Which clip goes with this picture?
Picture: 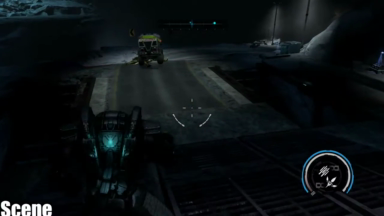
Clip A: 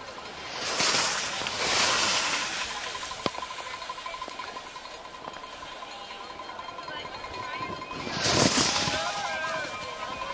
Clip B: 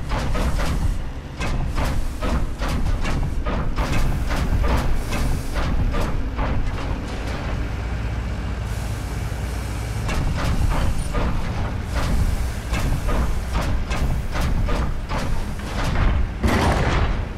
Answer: B